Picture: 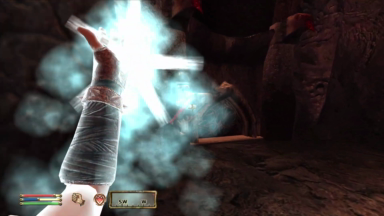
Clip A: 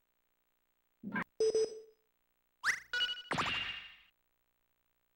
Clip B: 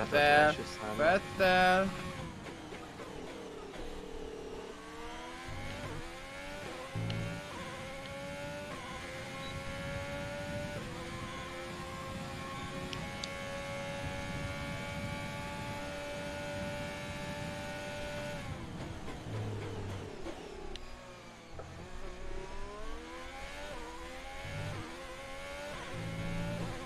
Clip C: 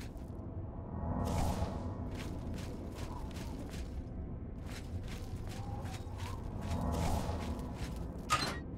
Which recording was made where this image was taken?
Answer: C